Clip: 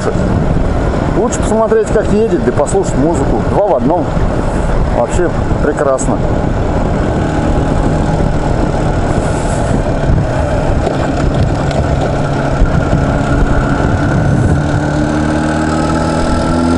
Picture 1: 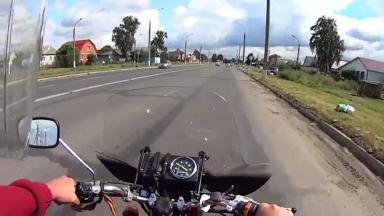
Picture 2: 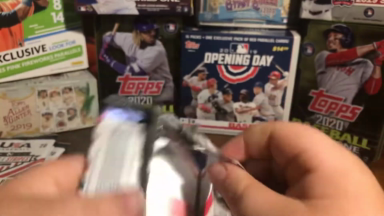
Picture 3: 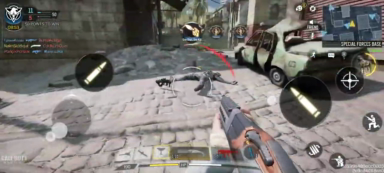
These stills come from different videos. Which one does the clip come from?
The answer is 1